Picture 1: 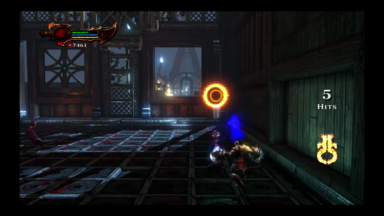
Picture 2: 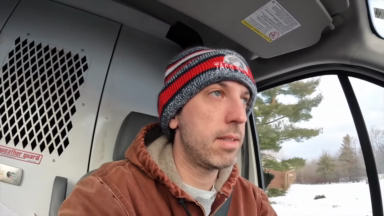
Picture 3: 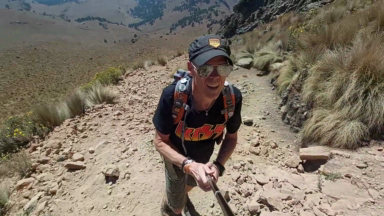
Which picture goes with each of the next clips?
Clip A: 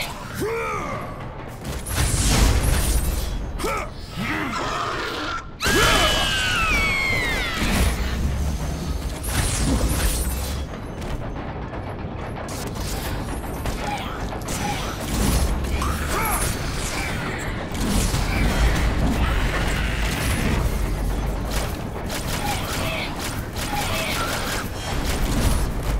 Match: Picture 1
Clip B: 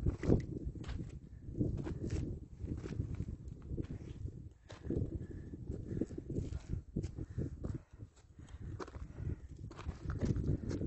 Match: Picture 3